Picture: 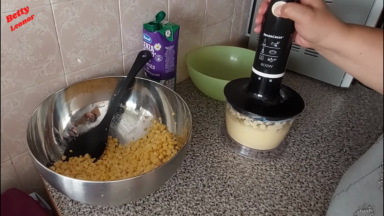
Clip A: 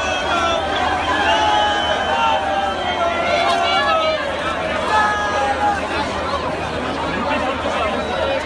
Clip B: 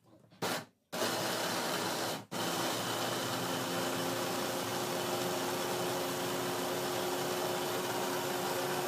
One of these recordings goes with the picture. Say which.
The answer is B